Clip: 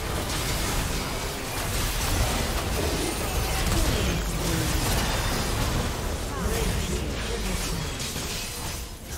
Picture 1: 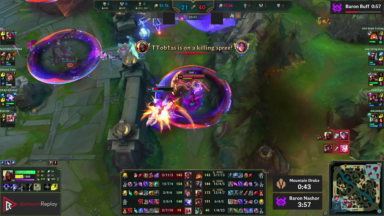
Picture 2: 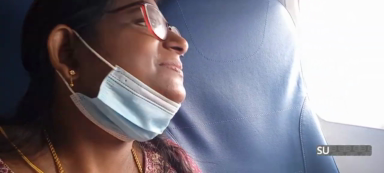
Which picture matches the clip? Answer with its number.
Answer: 1